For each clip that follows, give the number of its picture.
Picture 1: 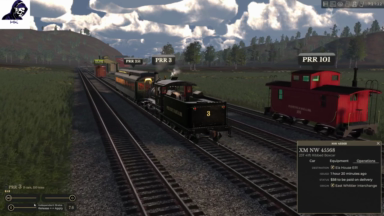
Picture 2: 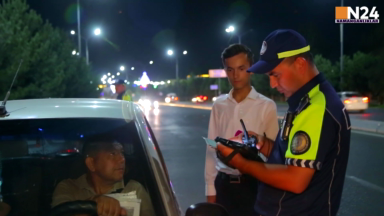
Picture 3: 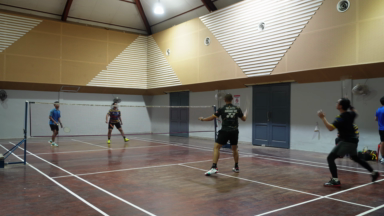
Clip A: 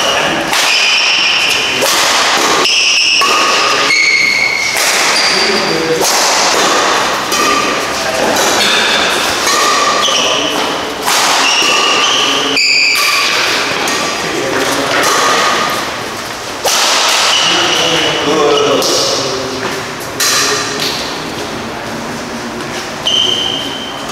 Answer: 3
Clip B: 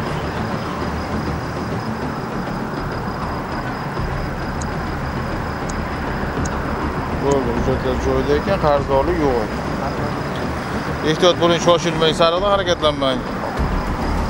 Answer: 2